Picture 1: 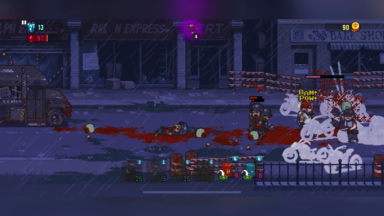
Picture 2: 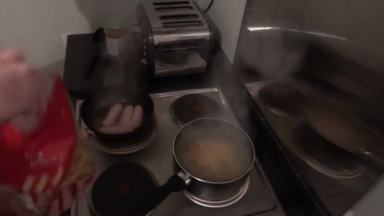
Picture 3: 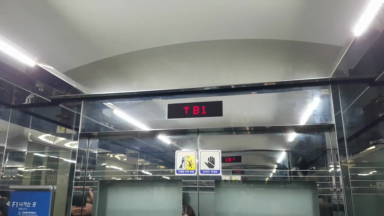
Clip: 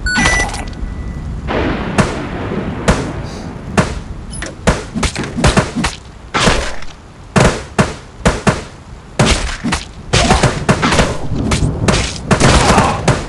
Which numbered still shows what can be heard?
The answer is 1